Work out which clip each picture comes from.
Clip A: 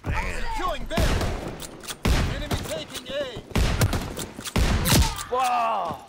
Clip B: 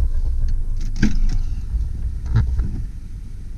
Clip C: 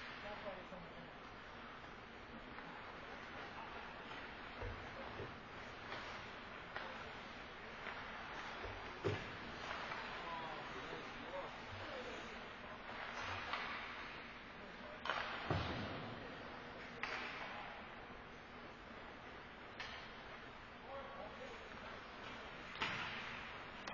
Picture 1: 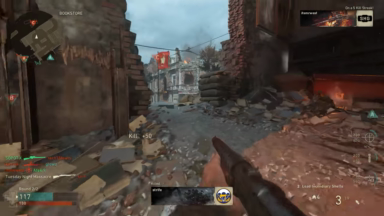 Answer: A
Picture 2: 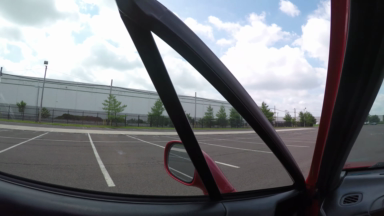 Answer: B